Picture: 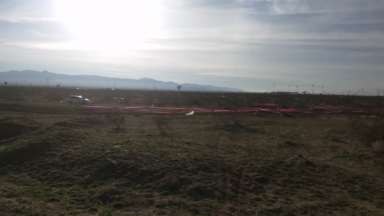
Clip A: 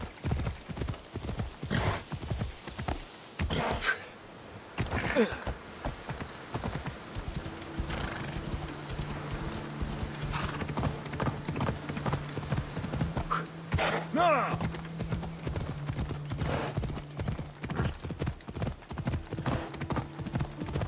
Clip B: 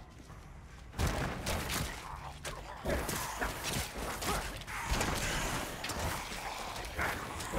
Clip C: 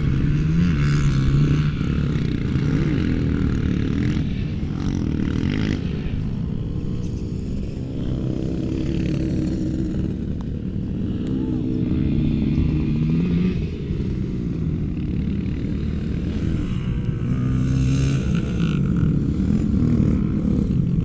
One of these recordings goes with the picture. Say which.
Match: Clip C